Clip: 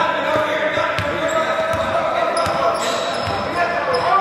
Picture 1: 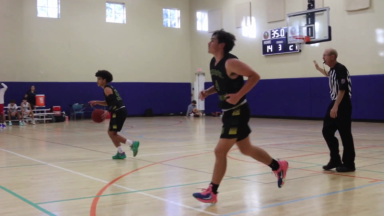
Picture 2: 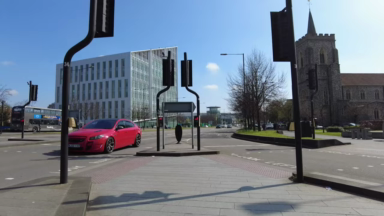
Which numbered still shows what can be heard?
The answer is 1